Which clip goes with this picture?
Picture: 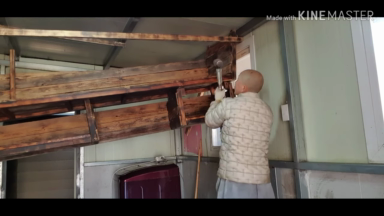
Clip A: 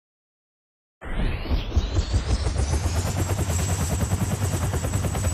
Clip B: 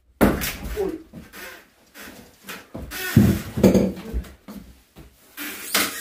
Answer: B